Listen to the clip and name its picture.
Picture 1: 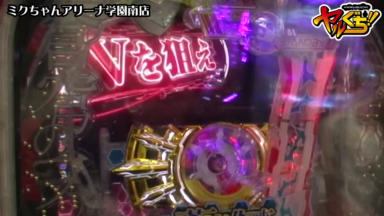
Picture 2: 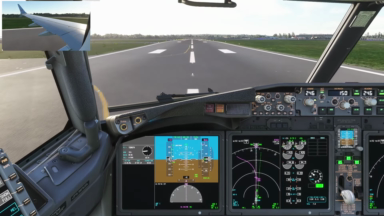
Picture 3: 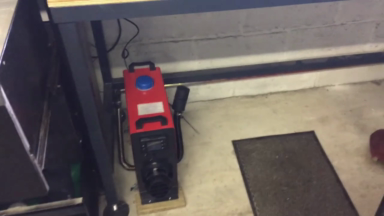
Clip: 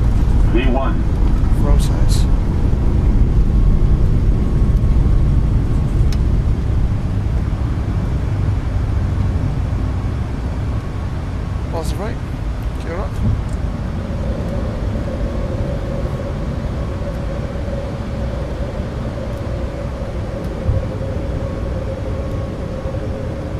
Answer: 2